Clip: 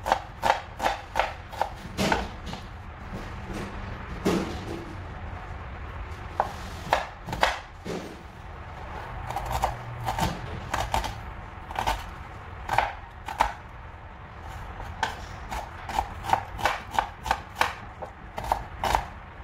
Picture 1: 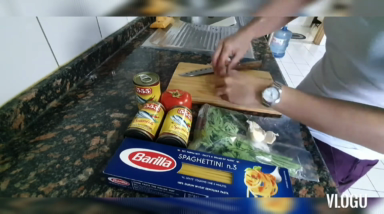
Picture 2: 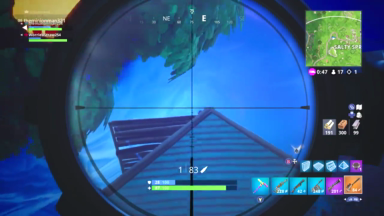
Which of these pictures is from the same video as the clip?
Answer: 1